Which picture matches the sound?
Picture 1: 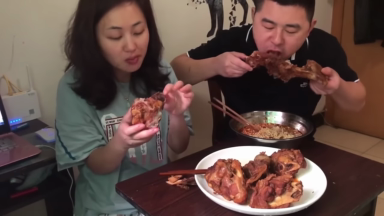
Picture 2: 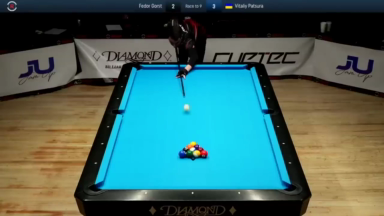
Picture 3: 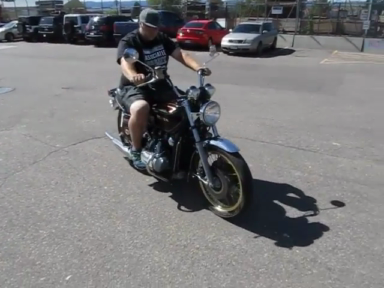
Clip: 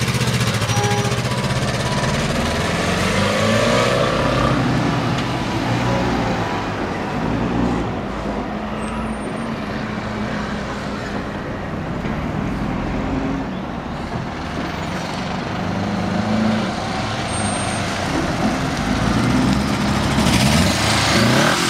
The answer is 3